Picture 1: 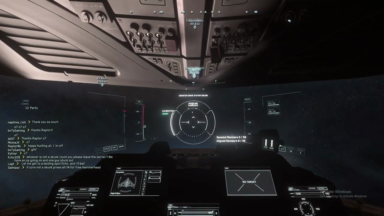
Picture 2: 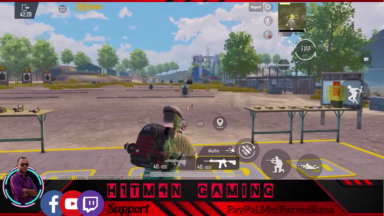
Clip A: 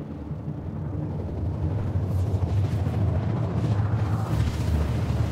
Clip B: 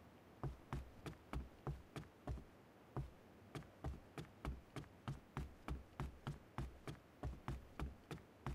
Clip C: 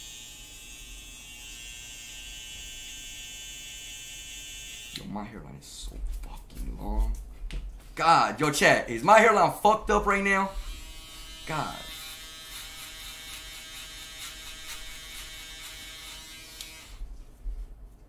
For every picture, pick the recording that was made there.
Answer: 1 A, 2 B